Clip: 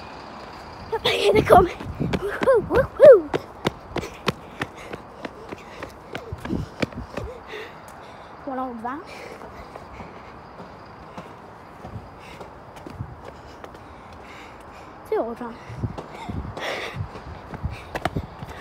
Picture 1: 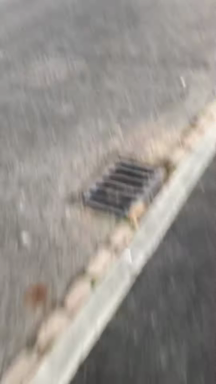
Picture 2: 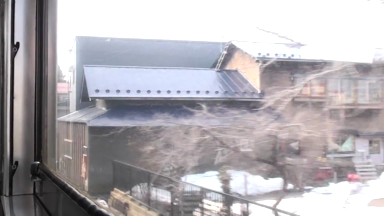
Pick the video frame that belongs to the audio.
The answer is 1